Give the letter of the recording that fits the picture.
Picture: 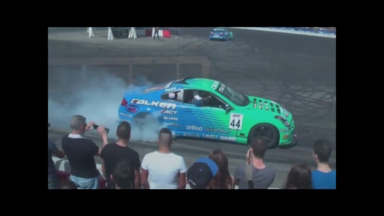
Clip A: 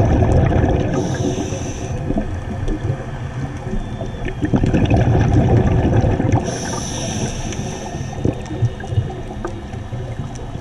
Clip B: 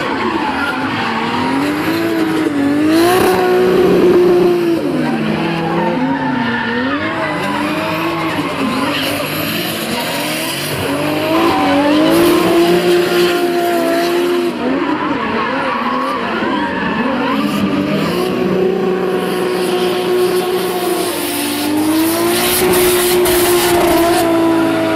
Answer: B